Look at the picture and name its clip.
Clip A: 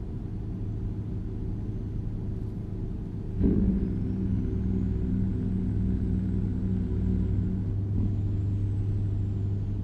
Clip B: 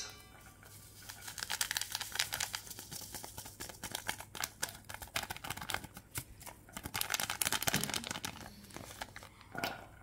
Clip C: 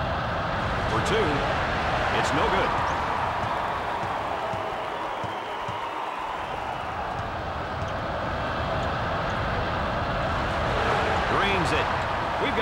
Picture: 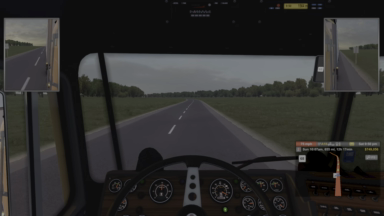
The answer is A